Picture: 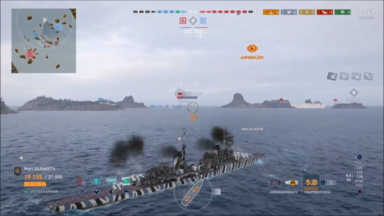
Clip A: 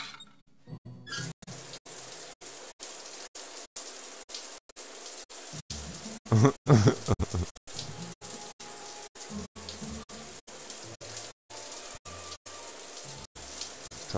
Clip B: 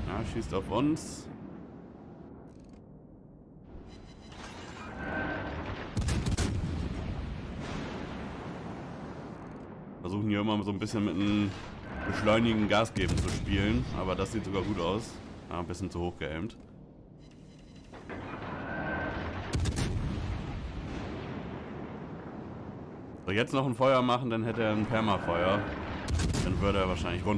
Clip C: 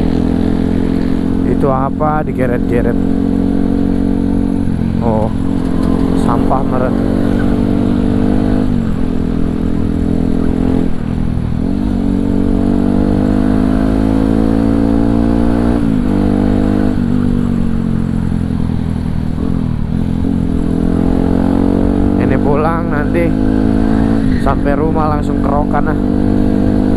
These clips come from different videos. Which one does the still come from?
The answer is B